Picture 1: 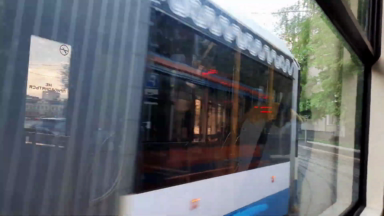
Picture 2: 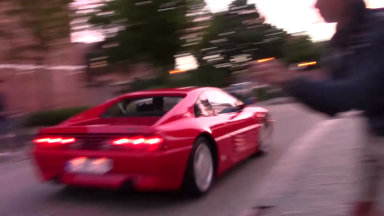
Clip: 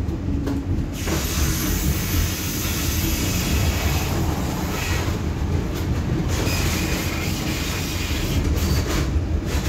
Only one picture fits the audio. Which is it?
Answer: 1